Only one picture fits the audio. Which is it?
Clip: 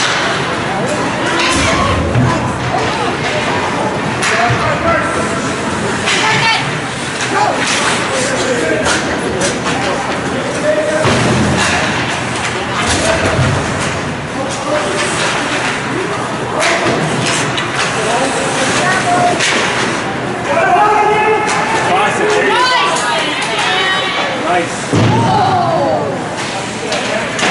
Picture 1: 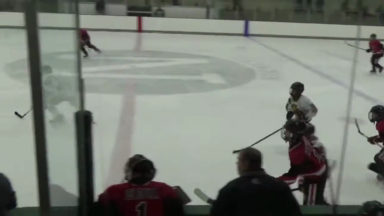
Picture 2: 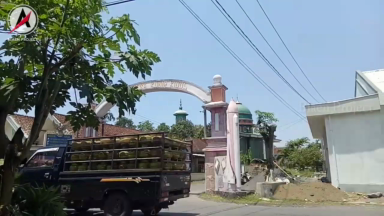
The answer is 1